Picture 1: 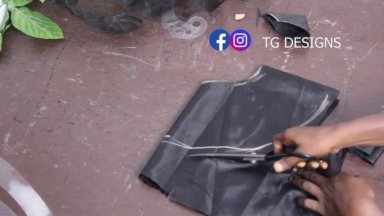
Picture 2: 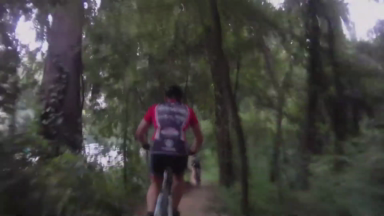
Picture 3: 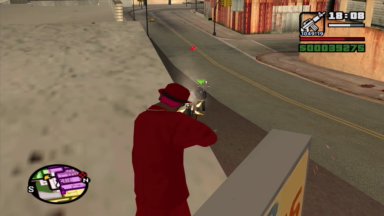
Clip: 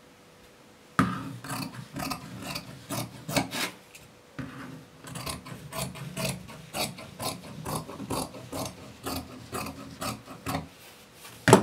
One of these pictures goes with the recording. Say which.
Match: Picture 1